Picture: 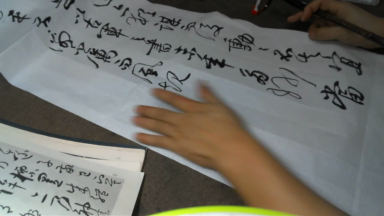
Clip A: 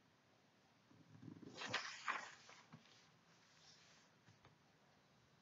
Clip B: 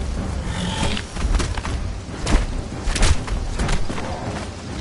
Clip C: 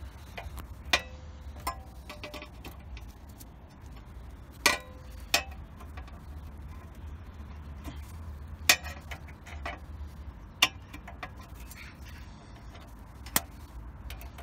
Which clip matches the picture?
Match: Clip A